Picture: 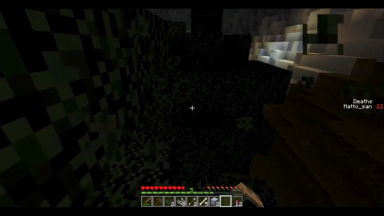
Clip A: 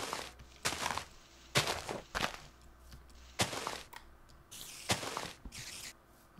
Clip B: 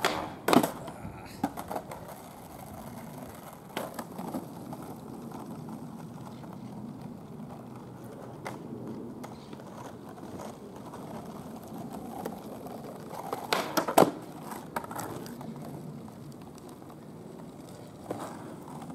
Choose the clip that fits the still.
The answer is A